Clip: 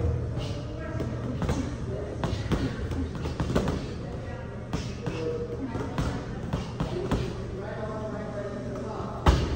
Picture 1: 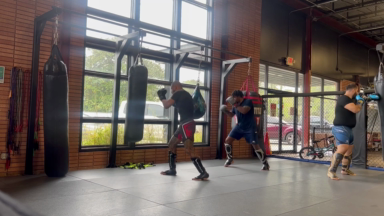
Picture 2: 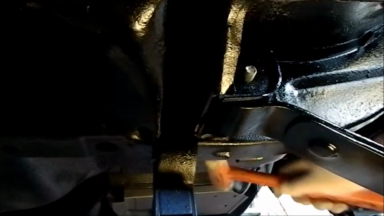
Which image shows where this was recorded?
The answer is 1